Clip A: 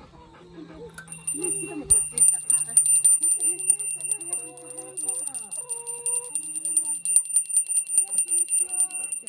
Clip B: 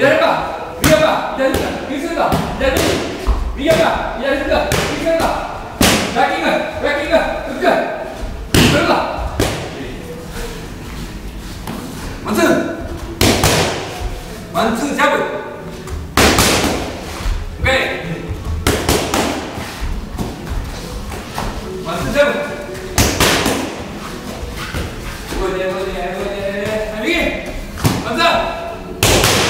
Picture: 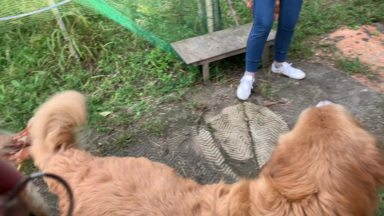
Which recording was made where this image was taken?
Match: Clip A